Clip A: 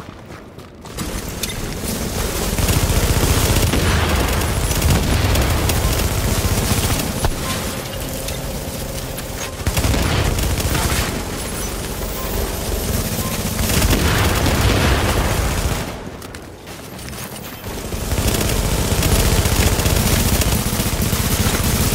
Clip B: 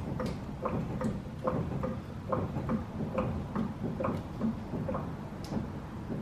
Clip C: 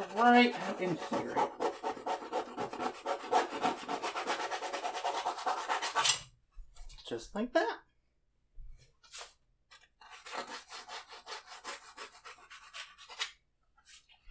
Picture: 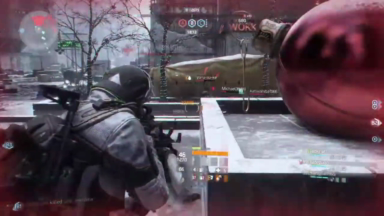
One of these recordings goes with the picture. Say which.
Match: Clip A